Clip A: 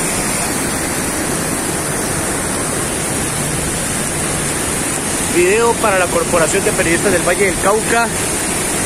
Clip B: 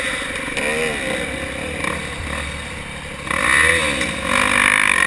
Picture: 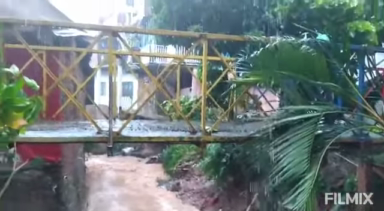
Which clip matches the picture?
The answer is A